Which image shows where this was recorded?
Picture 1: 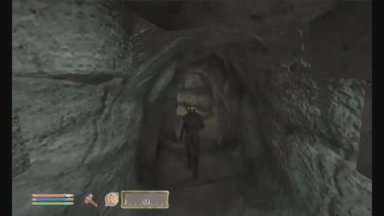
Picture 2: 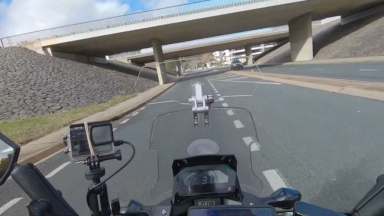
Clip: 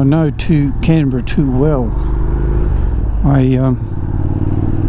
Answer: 2